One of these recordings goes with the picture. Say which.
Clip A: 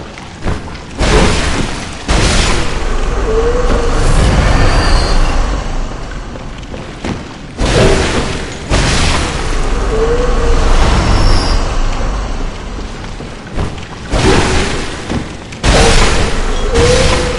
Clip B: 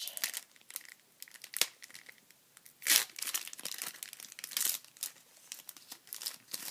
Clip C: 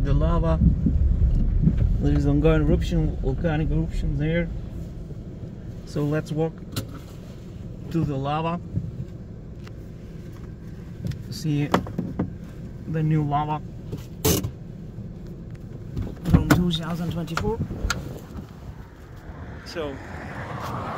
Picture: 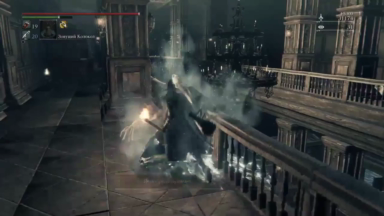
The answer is A